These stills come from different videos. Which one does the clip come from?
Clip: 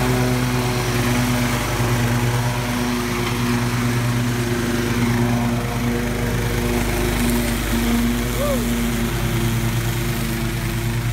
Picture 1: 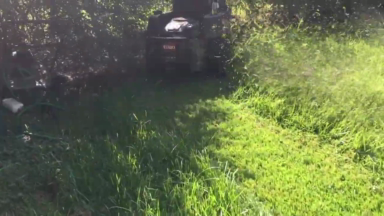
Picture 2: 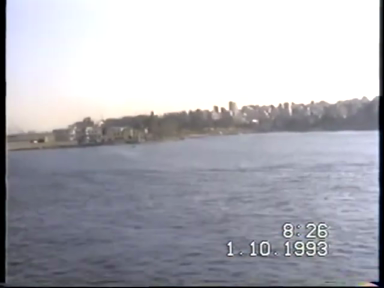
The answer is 1